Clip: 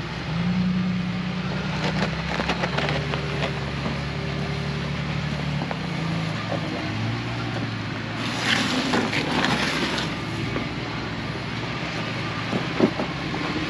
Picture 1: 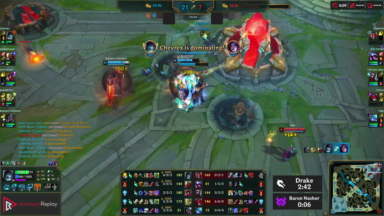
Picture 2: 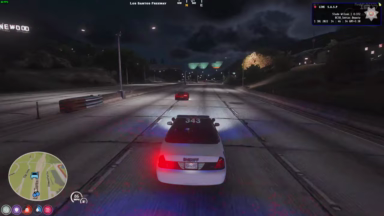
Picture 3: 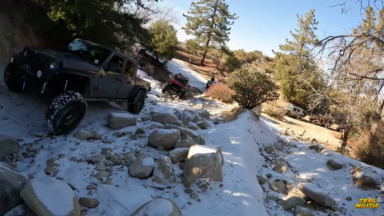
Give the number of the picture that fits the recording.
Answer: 3